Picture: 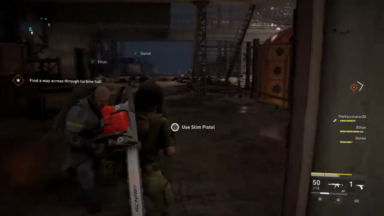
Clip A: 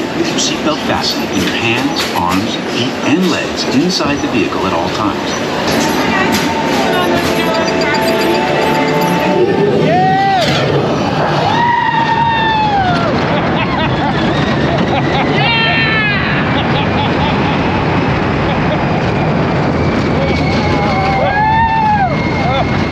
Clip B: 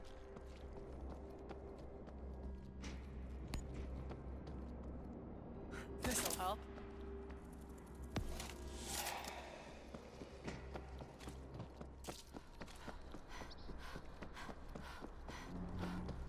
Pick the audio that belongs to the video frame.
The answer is B